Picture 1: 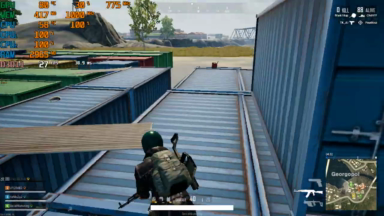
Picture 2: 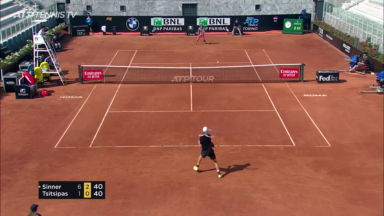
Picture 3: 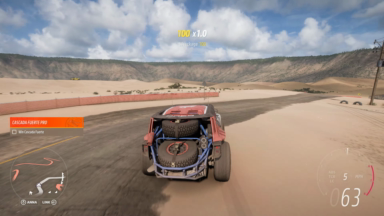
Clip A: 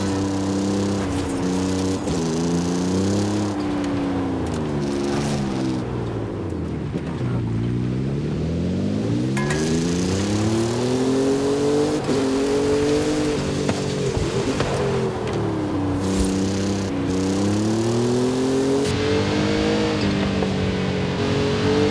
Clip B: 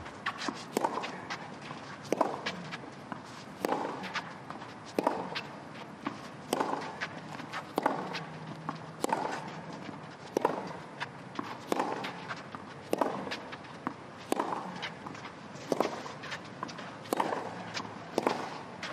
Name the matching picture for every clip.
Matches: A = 3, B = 2